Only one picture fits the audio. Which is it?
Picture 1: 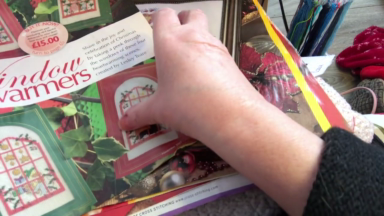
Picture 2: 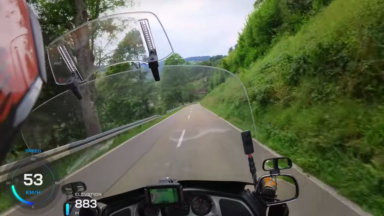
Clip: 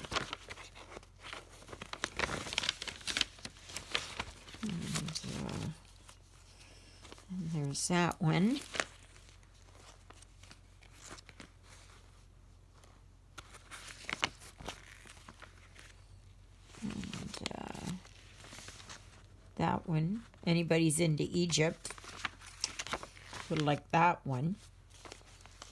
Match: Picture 1